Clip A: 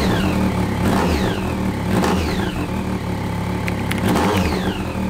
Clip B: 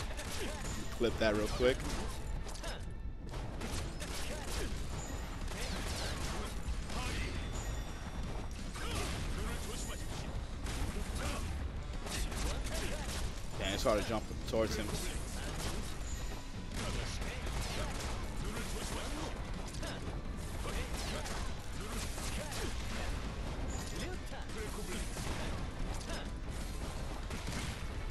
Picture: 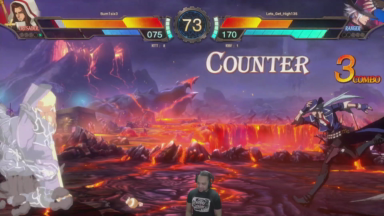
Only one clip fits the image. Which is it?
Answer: B